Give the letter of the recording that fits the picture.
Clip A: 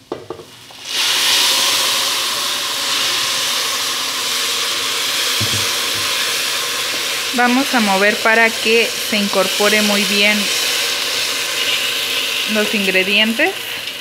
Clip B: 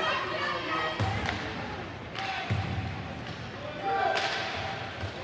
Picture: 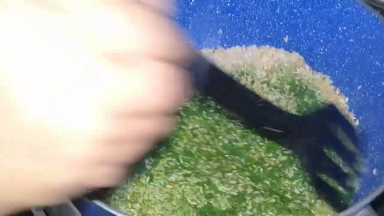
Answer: A